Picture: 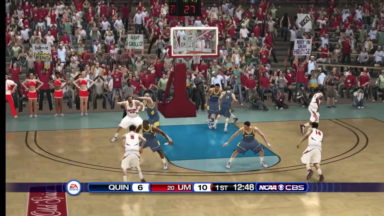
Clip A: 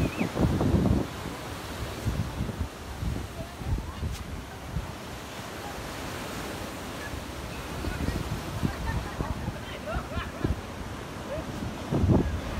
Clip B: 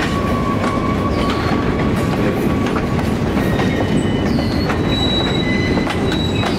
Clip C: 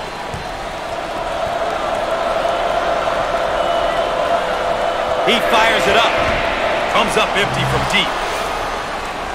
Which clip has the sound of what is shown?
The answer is C